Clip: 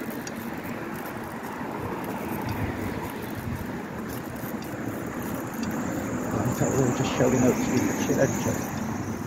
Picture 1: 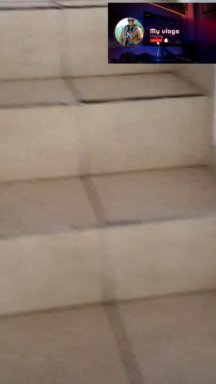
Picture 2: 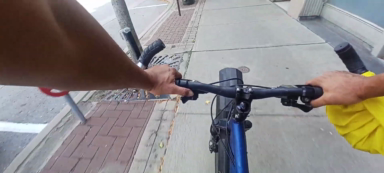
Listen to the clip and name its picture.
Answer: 2